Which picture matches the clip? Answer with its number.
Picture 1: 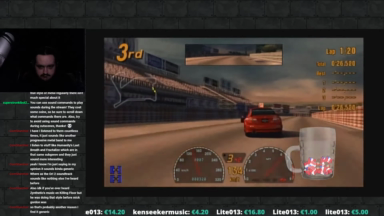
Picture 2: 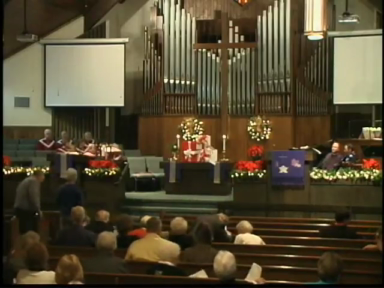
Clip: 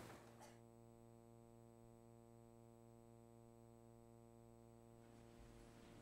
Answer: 2